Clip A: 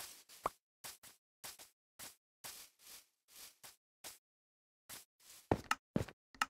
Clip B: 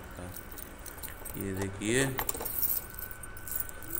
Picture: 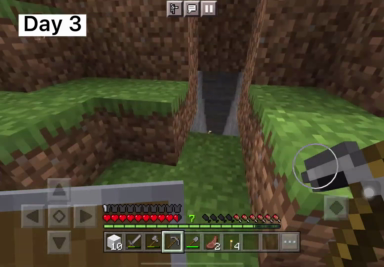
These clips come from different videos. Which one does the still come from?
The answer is A